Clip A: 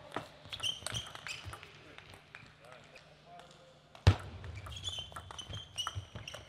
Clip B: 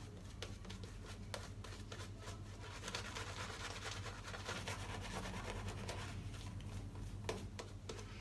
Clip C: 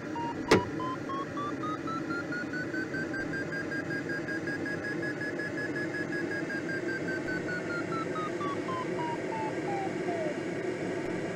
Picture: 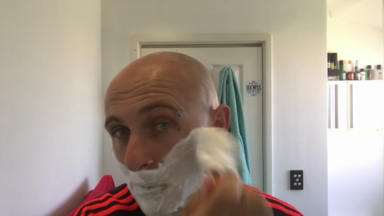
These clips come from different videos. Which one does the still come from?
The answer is B